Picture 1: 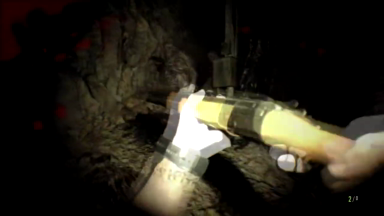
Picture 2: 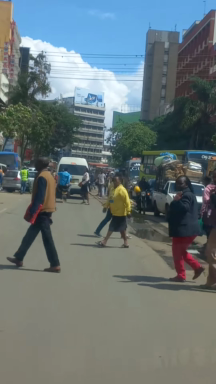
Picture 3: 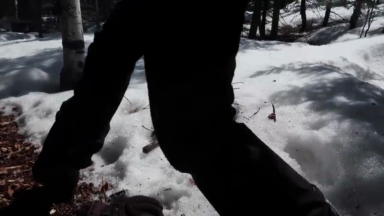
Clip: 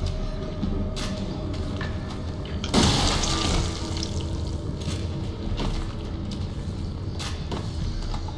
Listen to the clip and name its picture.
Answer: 1